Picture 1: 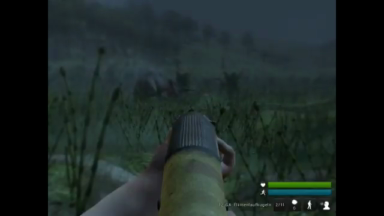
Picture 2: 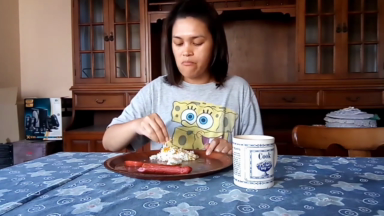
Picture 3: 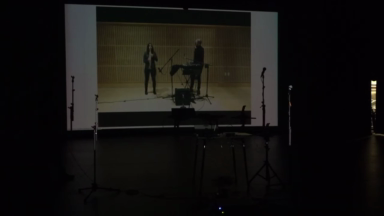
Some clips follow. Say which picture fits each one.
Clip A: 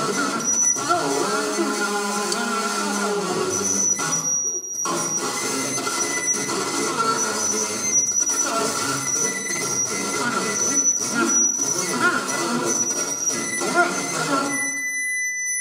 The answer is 3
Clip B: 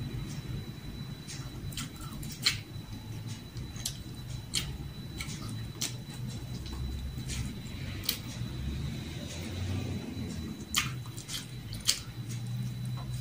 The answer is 2